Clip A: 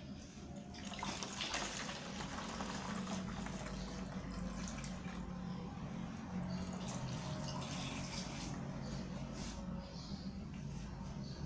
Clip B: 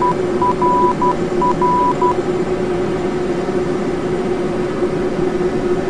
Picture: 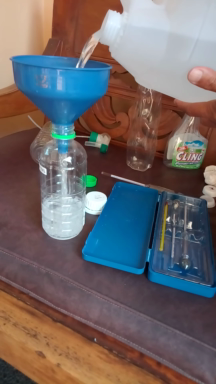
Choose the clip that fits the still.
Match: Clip A